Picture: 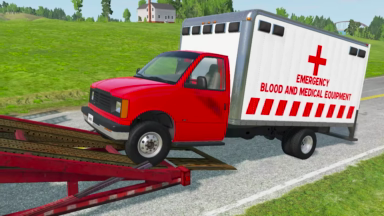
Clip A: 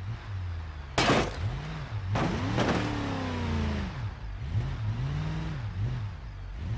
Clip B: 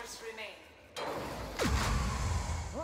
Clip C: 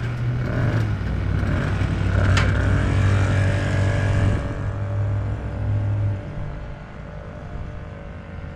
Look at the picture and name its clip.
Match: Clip A